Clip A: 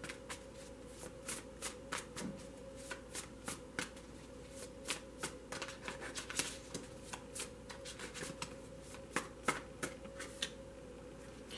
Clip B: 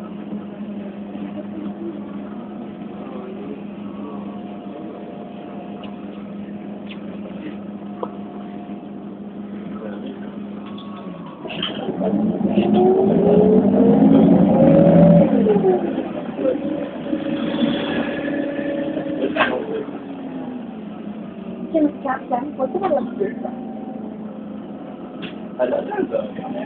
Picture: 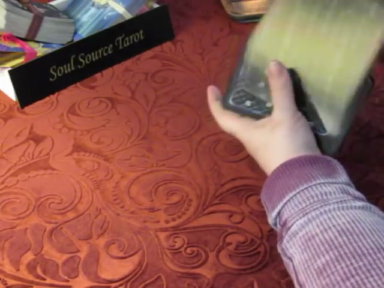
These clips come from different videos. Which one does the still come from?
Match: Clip A